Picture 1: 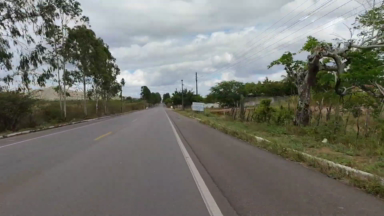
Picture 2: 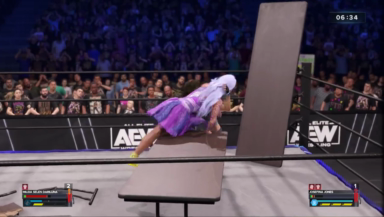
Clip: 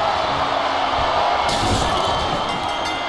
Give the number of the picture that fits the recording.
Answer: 2